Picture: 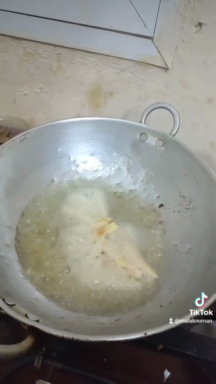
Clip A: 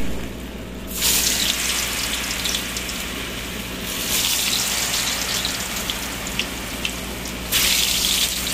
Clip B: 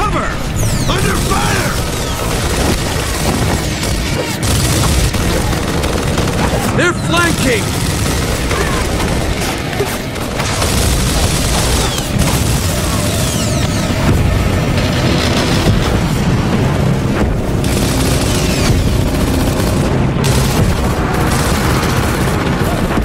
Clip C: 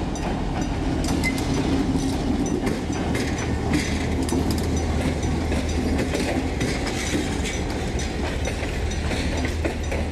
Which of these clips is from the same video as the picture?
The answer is A